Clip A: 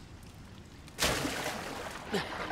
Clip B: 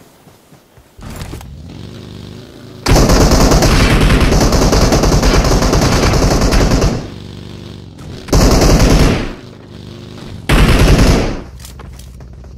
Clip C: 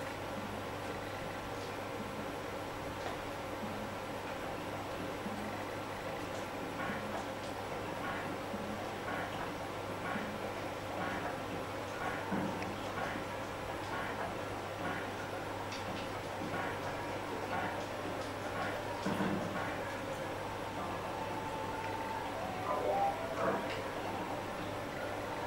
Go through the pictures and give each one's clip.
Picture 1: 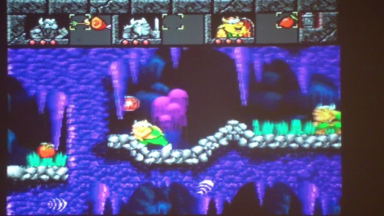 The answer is C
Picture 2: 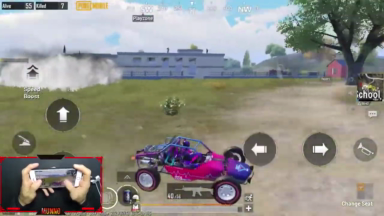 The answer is B